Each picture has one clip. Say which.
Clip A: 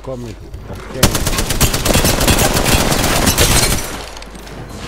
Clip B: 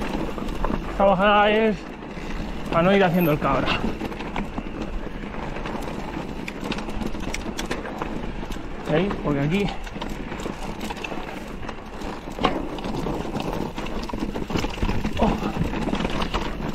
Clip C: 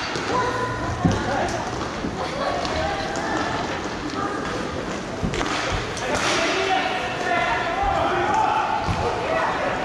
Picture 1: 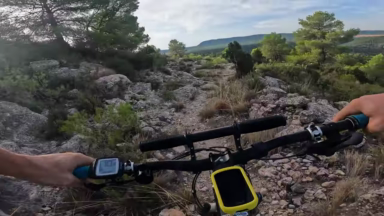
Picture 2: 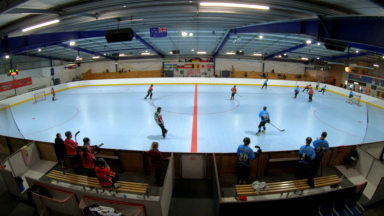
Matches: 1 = B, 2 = C